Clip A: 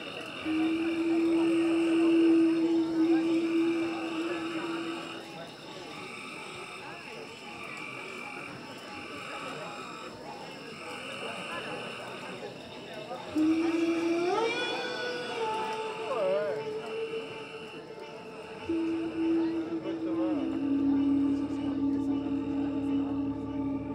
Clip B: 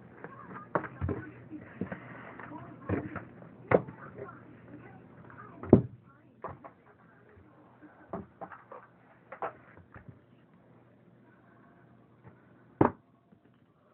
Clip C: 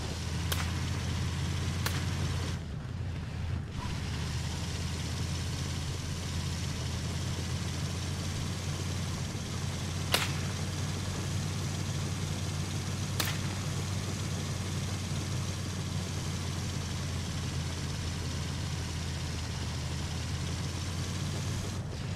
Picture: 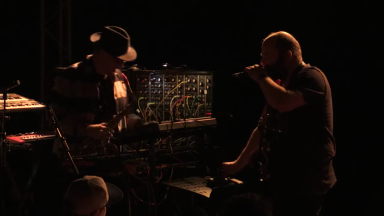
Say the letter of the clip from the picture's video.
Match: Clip A